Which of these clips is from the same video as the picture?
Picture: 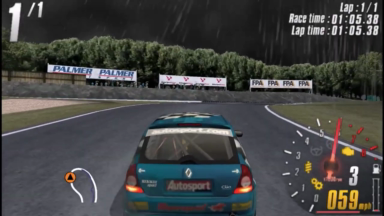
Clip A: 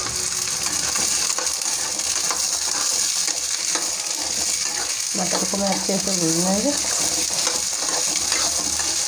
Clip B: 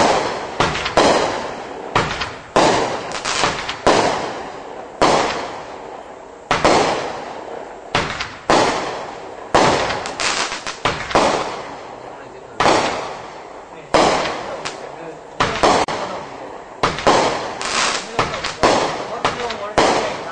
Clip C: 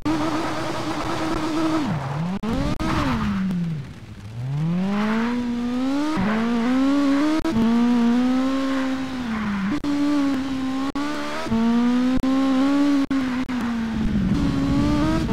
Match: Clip C